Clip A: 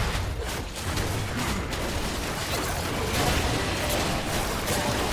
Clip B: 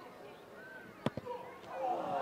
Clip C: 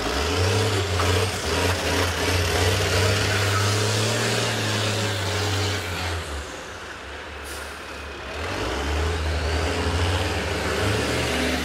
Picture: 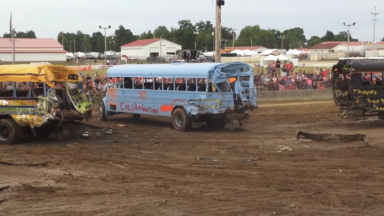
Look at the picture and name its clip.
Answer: C